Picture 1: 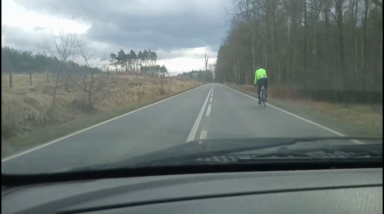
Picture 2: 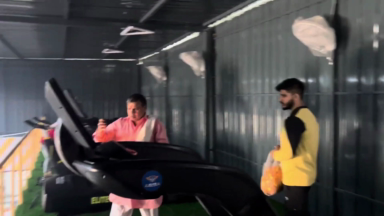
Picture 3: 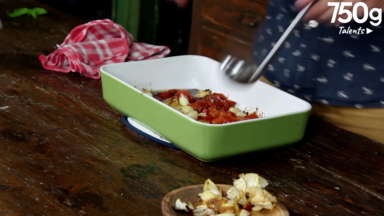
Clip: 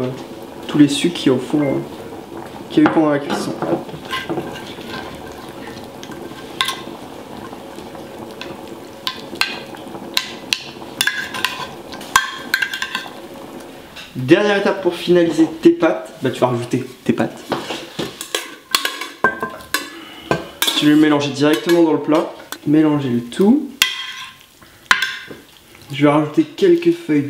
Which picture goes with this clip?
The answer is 3